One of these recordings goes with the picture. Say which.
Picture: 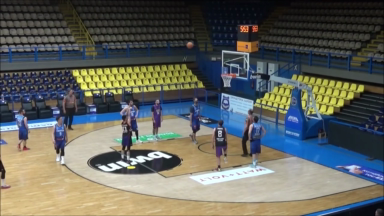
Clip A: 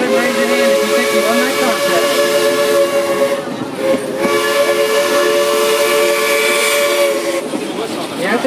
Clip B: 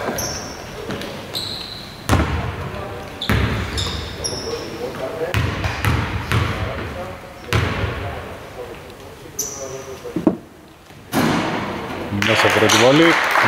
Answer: B